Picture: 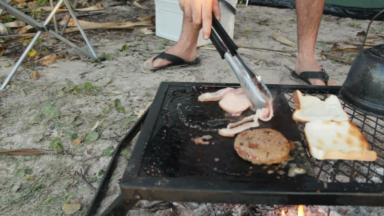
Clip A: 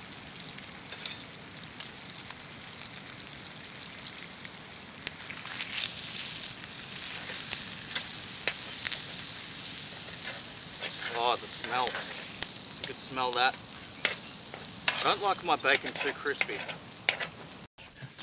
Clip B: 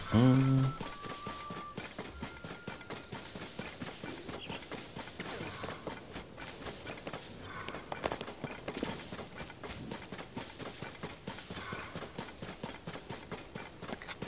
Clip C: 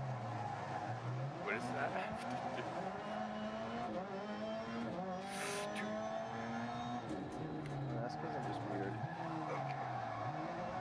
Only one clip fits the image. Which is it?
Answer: A